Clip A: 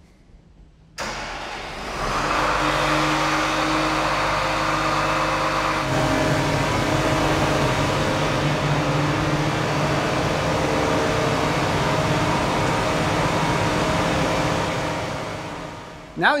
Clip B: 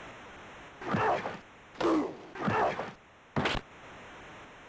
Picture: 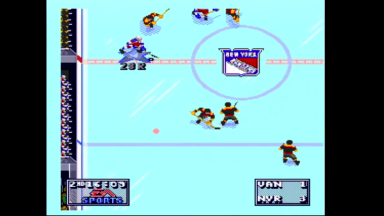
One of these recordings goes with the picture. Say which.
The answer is B